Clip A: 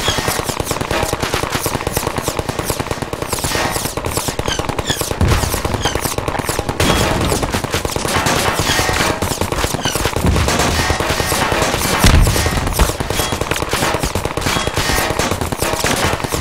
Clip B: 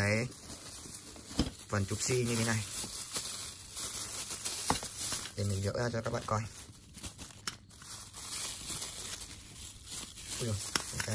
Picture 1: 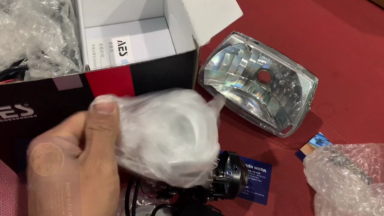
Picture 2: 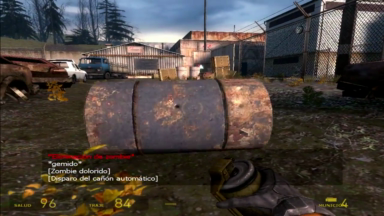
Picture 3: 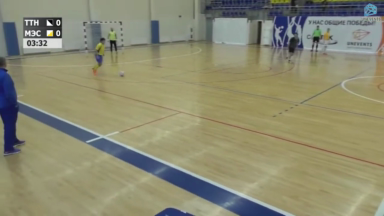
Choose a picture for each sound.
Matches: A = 2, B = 1